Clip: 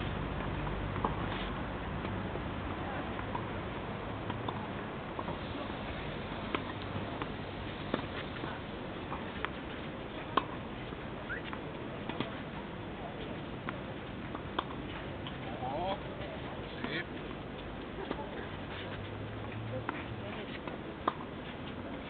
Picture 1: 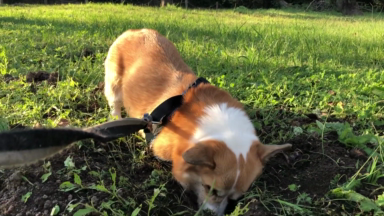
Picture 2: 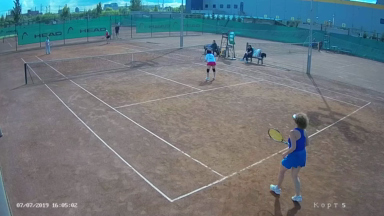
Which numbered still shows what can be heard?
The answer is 2